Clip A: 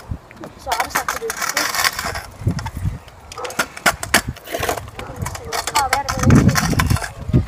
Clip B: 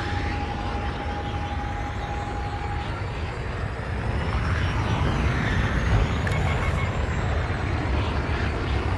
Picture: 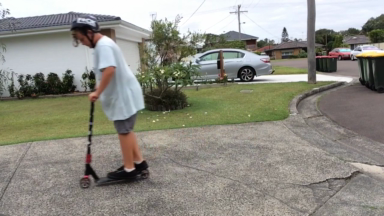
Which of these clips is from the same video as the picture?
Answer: A